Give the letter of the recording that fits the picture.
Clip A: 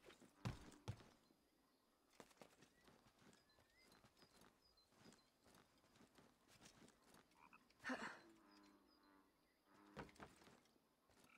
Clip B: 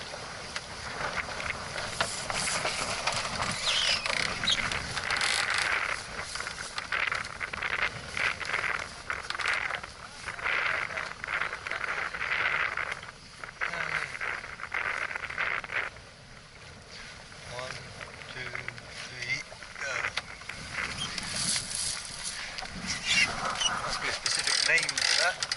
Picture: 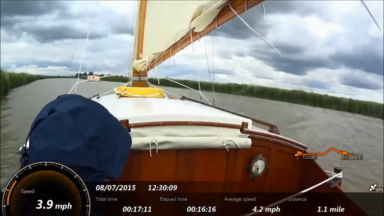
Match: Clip B